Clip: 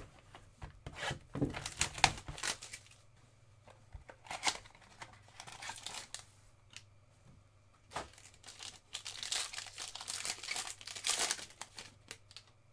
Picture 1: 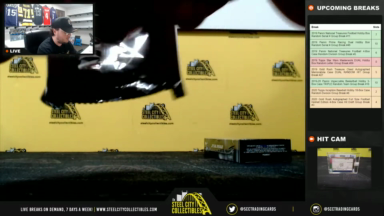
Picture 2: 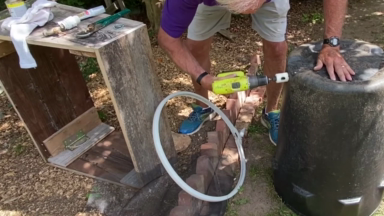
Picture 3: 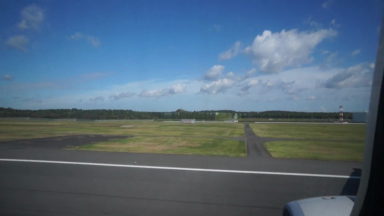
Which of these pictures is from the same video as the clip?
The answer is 1